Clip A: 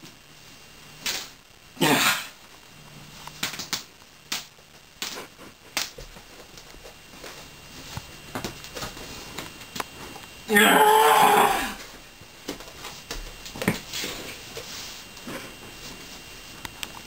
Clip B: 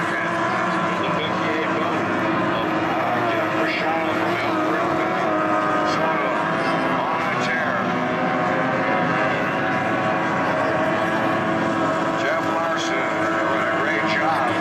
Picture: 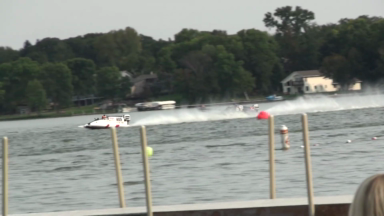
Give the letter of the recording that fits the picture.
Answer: B